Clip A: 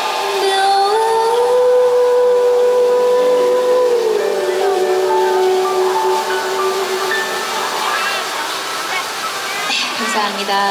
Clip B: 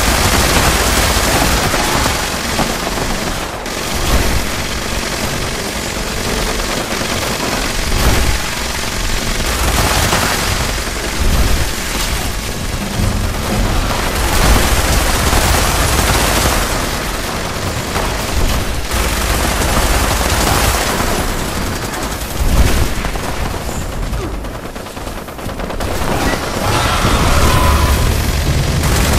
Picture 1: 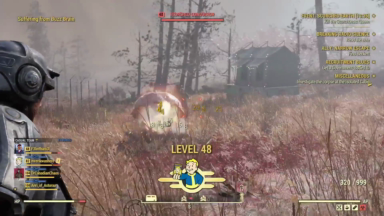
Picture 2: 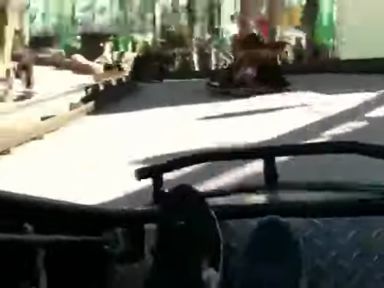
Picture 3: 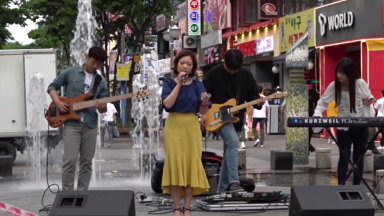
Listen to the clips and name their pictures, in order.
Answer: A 3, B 1